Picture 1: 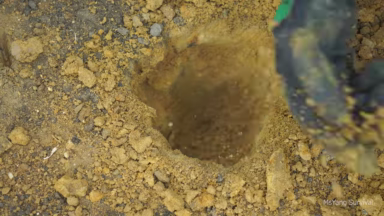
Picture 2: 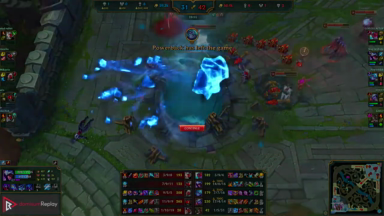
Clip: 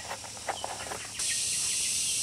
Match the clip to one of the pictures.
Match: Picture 1